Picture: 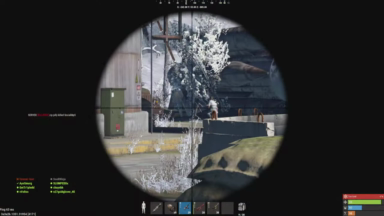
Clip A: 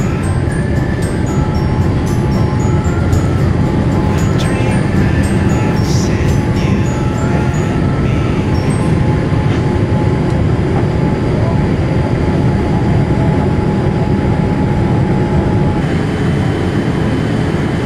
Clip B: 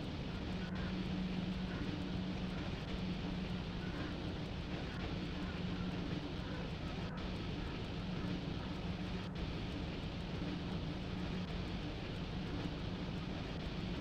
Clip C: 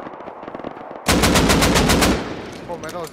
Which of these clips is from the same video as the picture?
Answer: C